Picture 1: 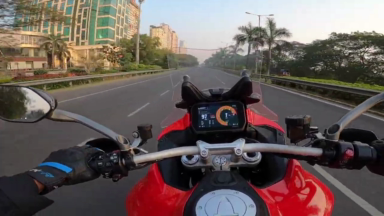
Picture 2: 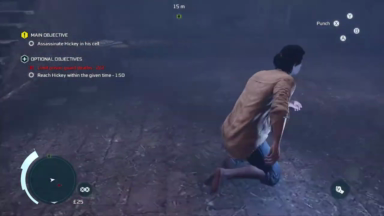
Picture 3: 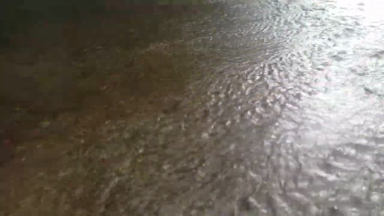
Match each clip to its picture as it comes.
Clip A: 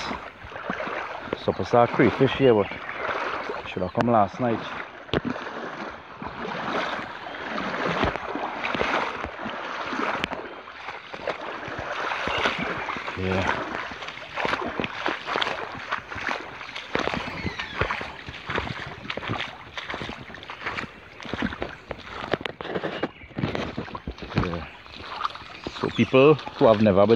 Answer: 3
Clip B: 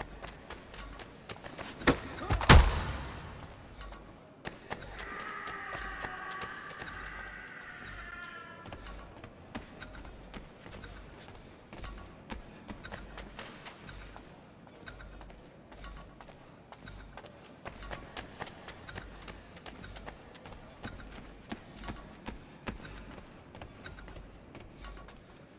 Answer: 2